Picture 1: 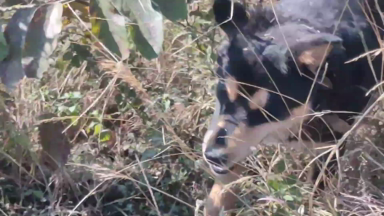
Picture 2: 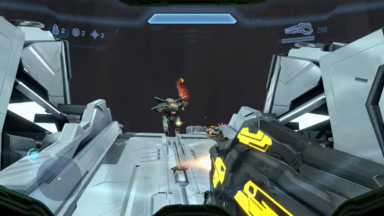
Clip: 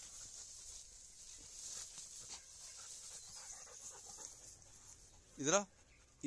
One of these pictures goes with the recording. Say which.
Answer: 1